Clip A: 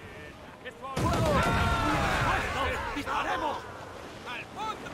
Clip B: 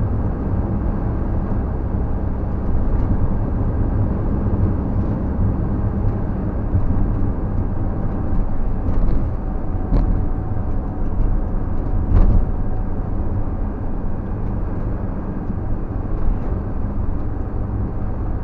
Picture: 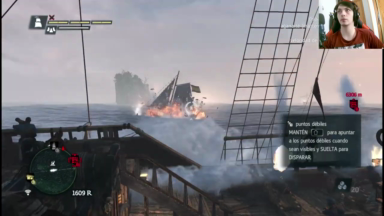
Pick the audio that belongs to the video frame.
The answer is A